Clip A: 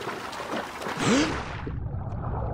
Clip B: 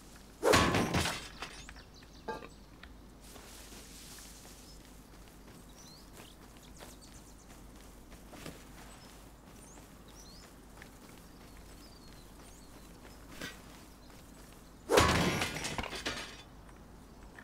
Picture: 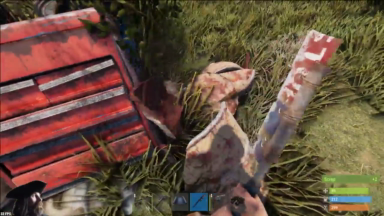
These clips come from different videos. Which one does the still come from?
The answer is B